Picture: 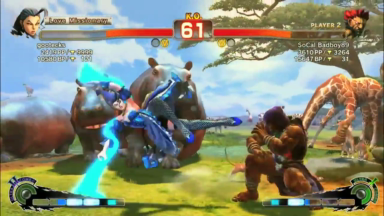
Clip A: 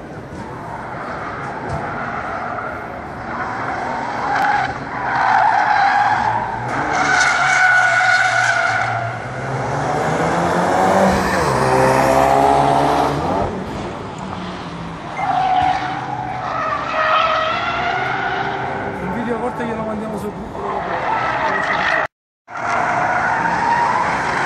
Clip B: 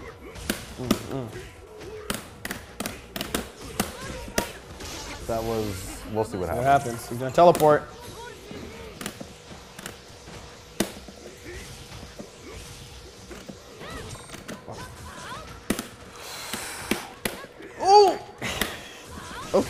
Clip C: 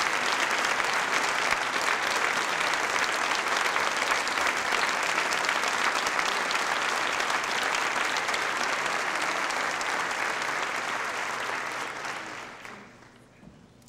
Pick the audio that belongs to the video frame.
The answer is B